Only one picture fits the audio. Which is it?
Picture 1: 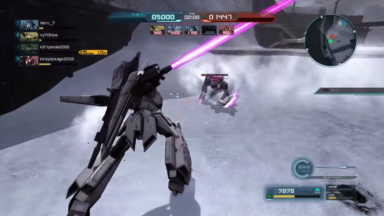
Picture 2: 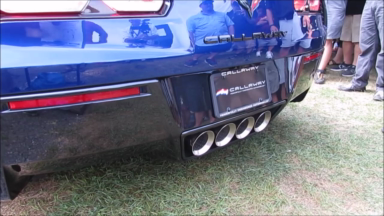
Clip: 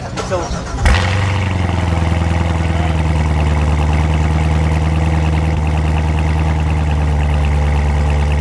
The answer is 2